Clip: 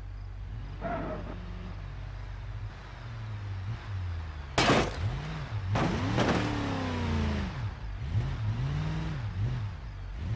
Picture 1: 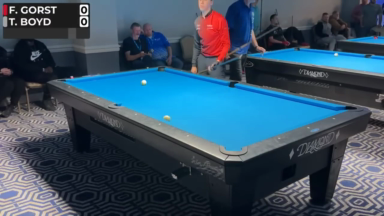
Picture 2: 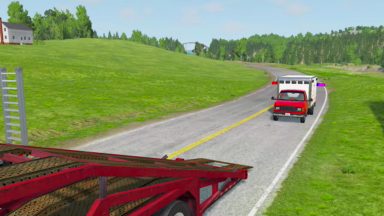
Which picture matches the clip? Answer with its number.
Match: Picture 2